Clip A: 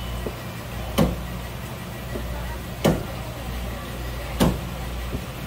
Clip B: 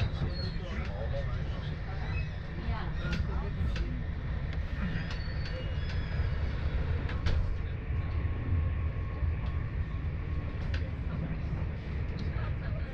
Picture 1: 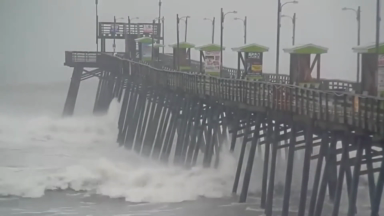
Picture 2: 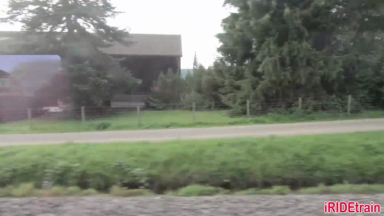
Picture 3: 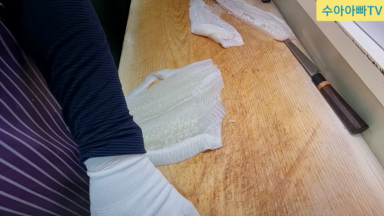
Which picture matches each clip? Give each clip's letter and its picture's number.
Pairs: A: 3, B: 2